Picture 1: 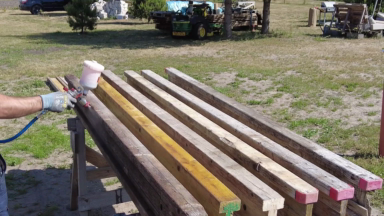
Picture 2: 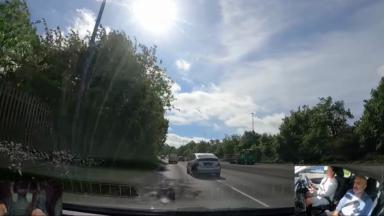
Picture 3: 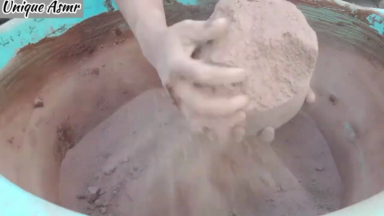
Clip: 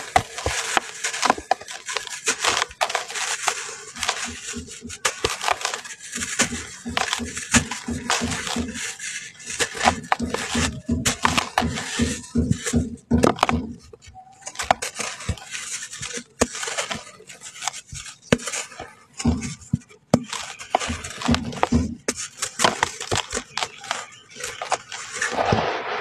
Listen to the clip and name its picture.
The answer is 3